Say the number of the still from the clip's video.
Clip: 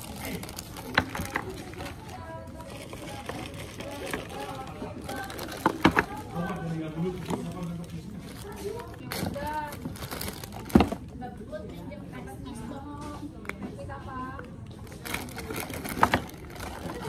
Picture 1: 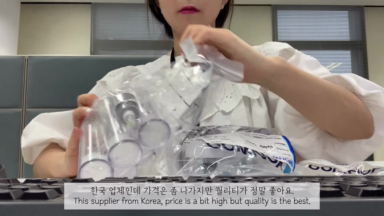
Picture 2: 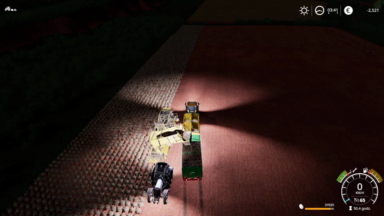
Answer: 1